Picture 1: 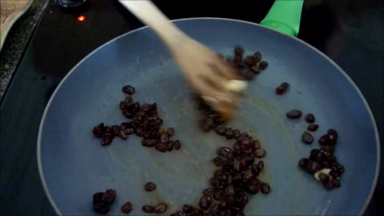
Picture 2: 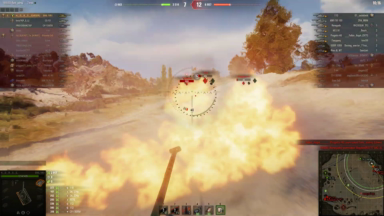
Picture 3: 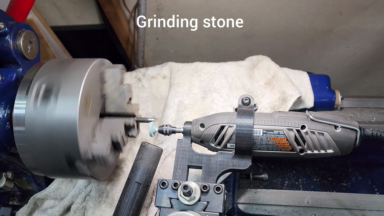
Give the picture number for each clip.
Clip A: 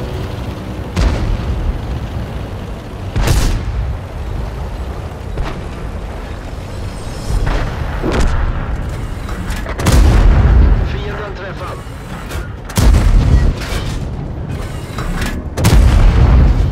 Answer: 2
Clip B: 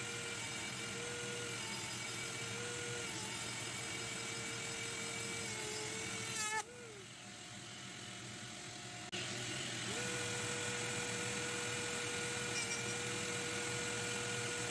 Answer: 3